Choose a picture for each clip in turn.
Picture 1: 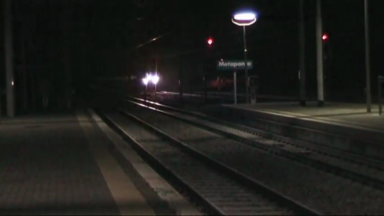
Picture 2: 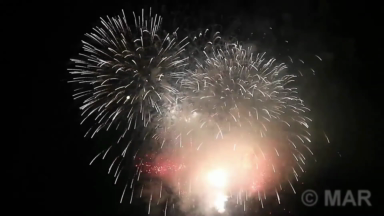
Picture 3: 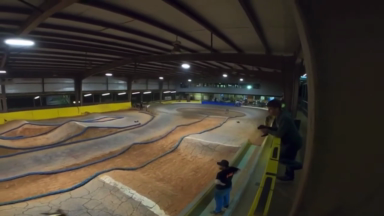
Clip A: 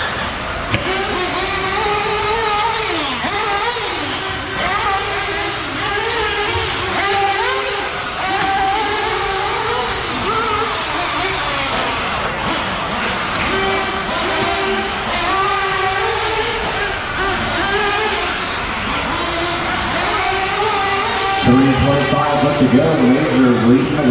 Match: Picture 3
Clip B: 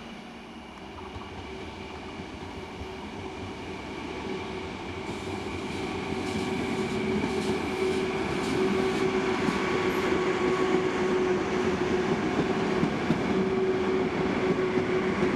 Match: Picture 1